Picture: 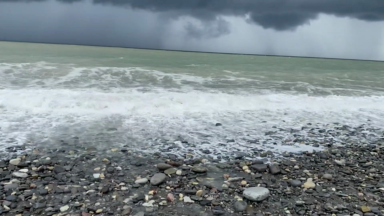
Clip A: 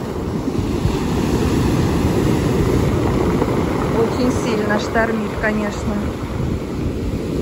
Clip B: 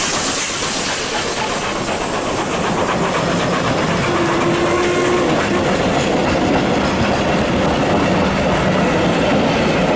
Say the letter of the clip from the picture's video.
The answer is A